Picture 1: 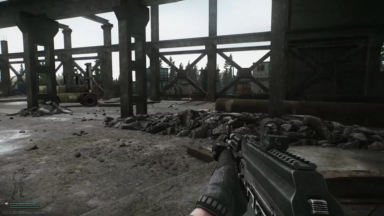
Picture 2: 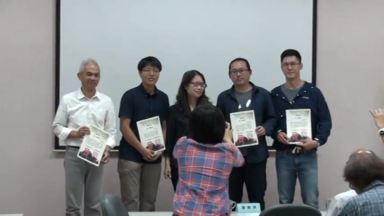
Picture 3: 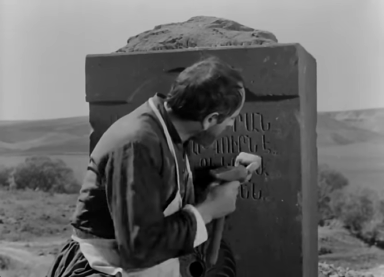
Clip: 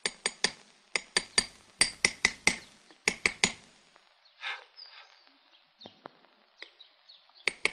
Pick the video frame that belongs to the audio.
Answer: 3